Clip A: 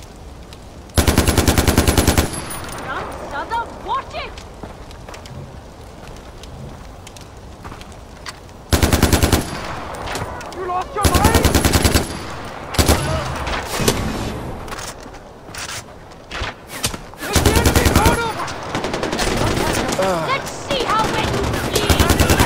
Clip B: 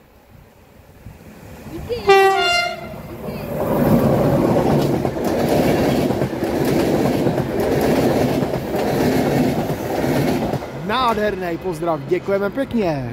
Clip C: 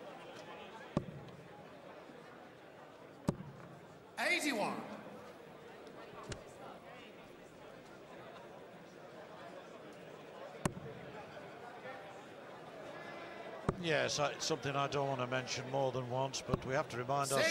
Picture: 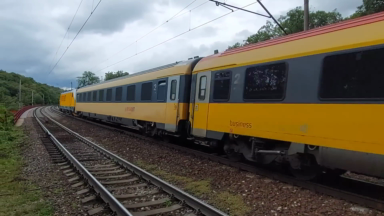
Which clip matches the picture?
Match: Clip B